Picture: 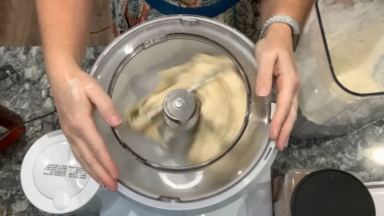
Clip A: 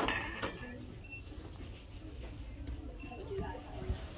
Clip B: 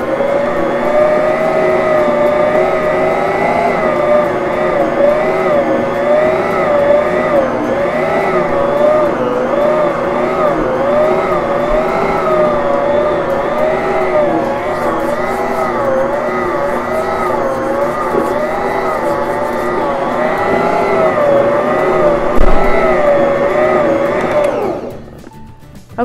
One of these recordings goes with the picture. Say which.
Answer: B